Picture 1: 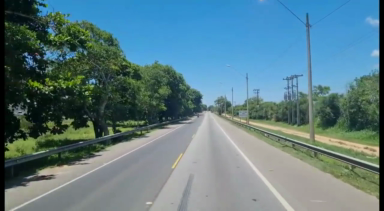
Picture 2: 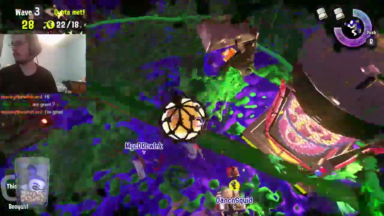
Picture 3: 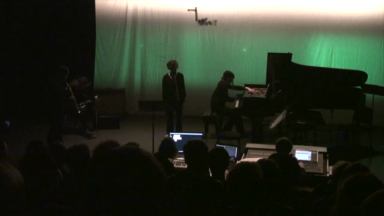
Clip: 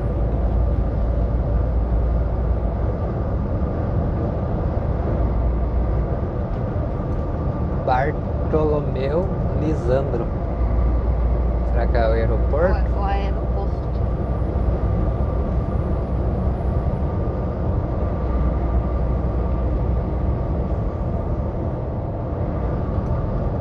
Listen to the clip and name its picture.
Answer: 1